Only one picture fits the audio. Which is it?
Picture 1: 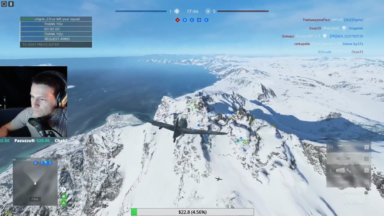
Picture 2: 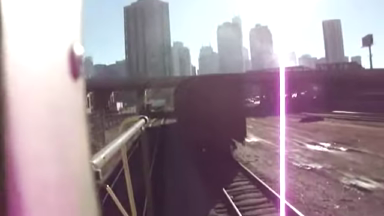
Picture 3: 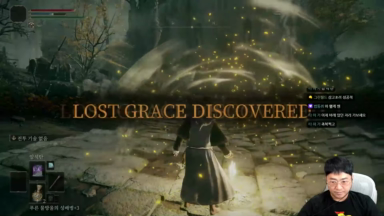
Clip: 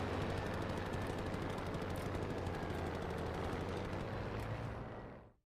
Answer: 1